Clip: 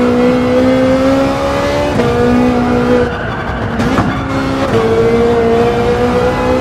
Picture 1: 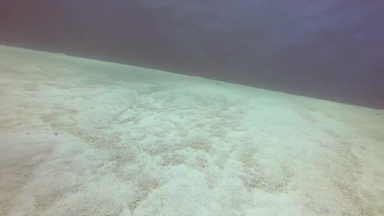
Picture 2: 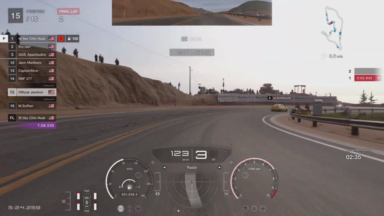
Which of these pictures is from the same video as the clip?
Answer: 2